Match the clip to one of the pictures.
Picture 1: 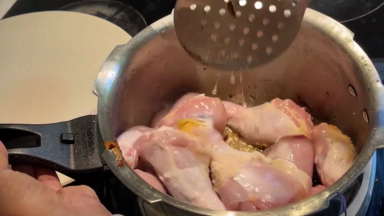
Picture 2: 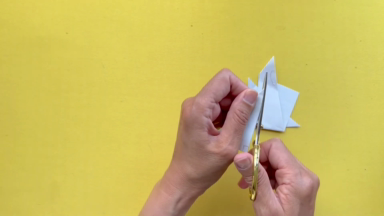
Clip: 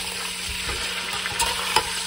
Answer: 1